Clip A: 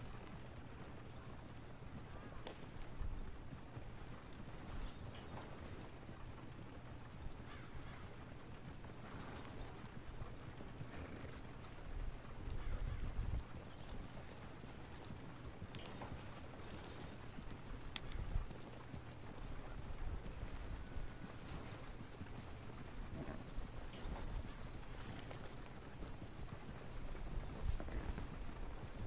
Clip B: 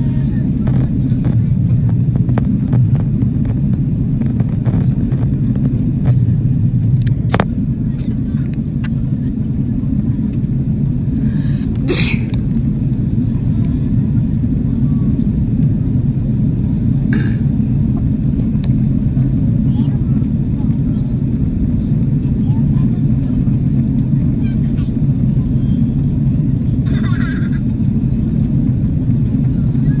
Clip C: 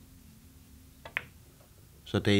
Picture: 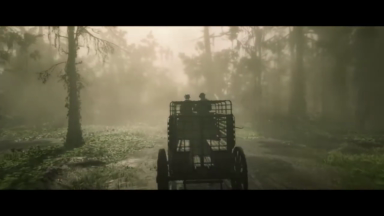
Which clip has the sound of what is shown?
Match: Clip A